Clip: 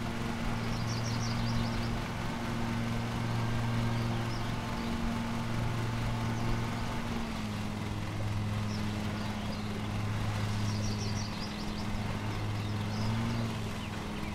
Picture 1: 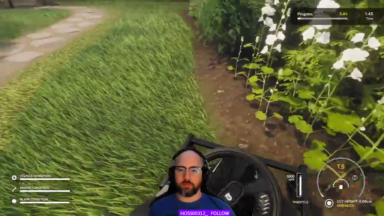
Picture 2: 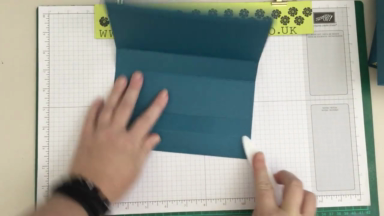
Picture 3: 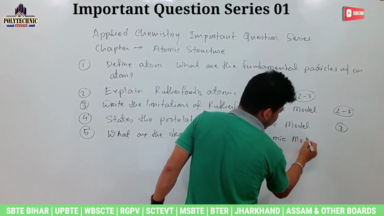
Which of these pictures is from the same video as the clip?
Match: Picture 1